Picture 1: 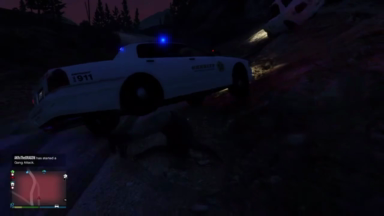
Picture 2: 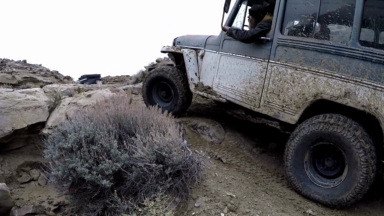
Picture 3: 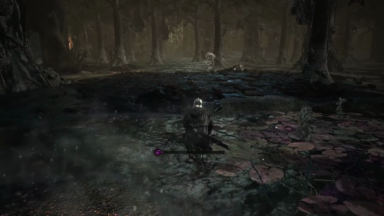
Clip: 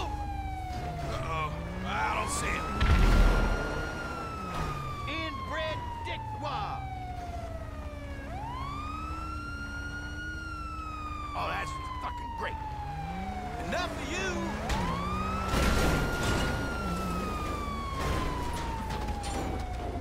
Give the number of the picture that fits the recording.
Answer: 1